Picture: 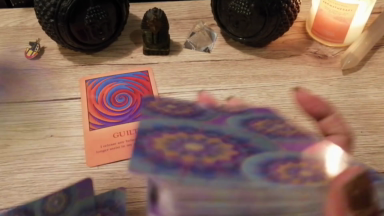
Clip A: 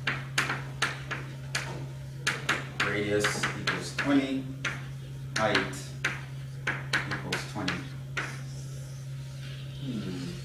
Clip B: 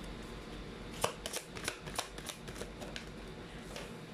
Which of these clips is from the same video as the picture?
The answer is B